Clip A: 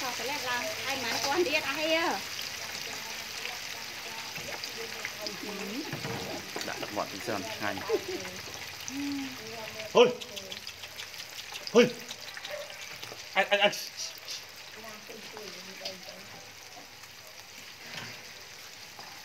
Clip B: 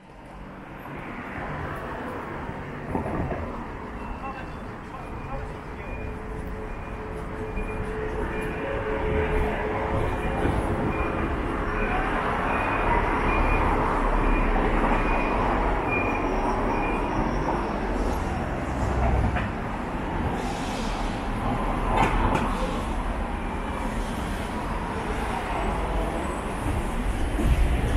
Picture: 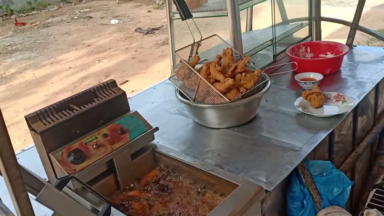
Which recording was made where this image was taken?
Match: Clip A